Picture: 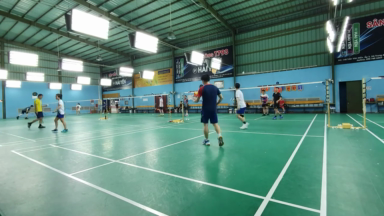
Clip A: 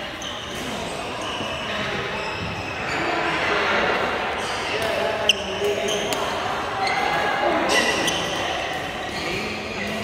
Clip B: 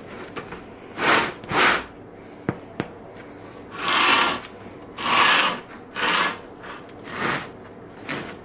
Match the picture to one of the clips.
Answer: A